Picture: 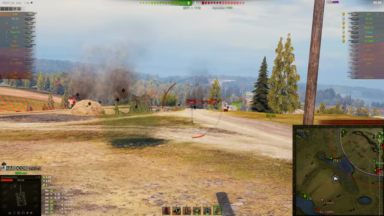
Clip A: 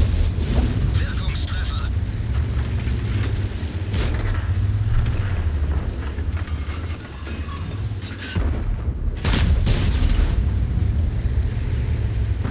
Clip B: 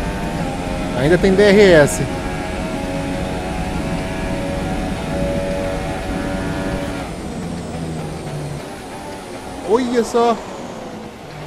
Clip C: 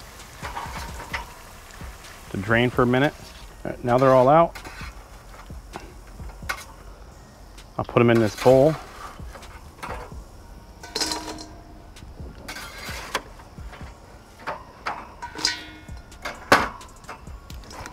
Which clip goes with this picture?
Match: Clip A